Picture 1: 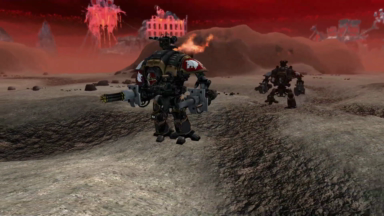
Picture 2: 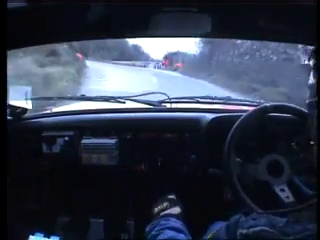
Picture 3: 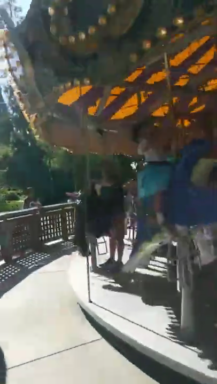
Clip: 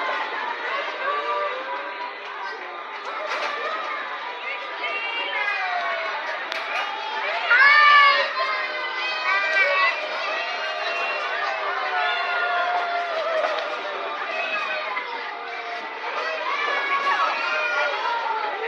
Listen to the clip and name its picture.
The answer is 3